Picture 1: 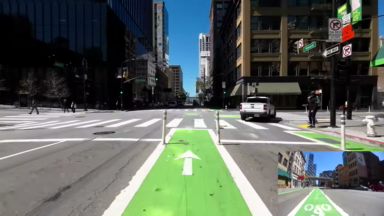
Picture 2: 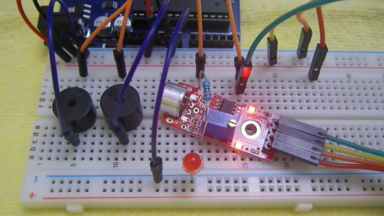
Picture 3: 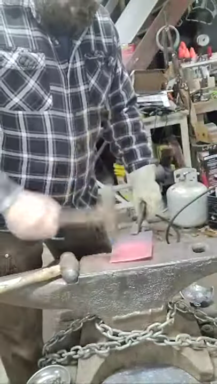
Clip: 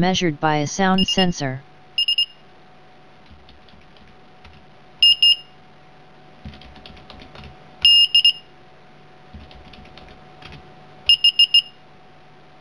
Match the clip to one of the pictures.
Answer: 2